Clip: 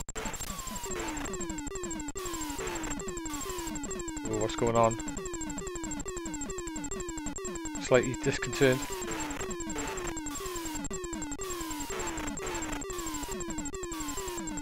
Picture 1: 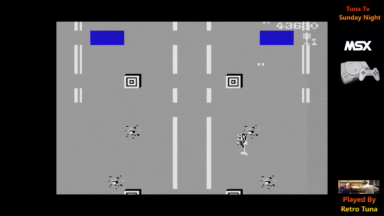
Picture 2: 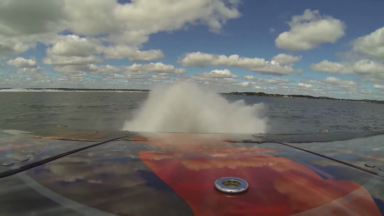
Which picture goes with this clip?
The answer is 1